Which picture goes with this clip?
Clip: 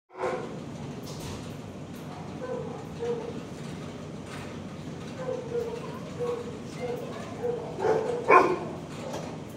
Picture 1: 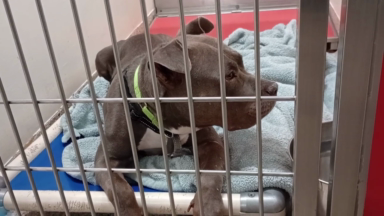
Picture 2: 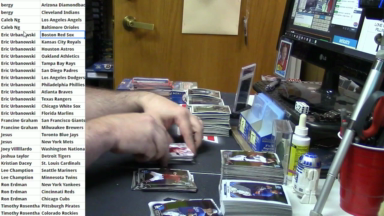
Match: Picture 1